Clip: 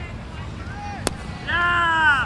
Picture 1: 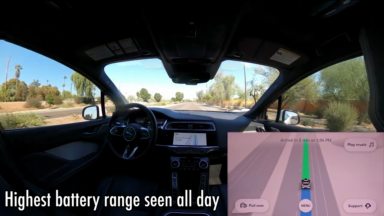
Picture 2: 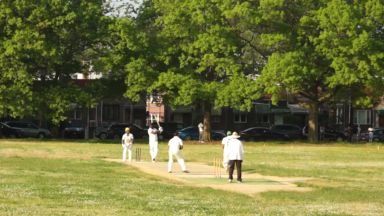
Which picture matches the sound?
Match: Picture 2